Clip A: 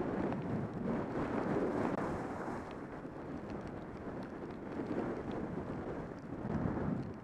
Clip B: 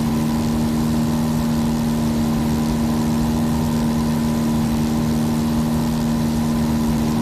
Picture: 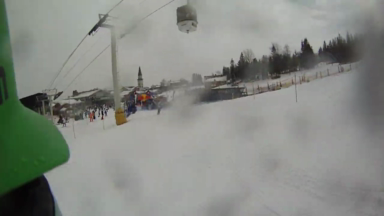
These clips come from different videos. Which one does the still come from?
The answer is A